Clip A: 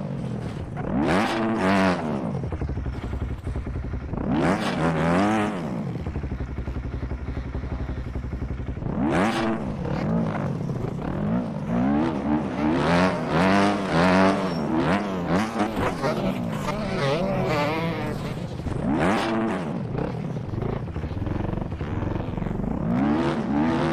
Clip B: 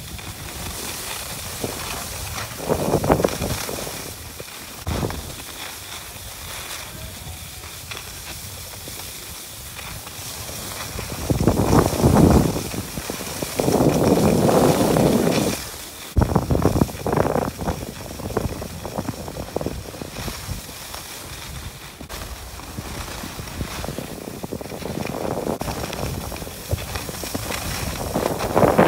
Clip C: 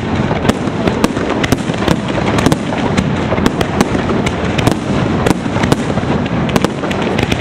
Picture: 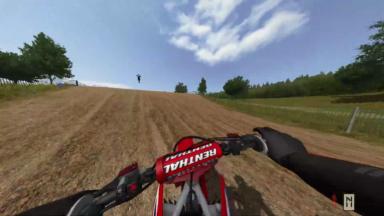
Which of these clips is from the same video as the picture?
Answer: A